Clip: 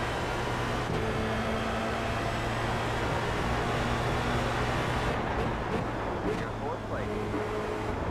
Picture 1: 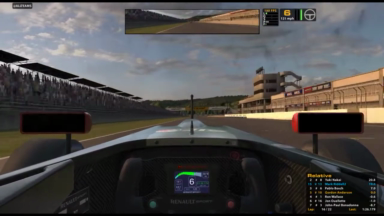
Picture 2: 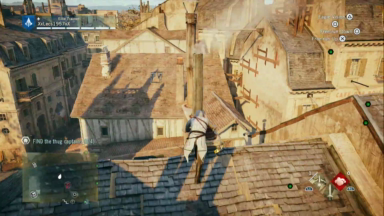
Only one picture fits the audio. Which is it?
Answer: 1